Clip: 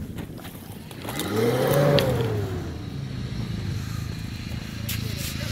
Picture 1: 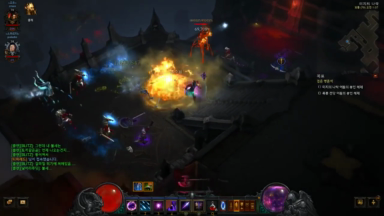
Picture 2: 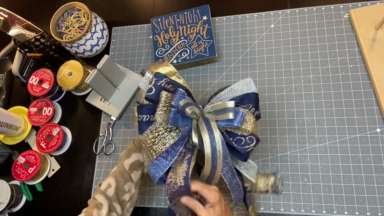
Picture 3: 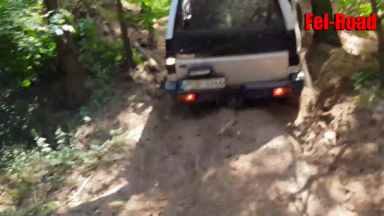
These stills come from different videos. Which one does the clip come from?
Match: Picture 3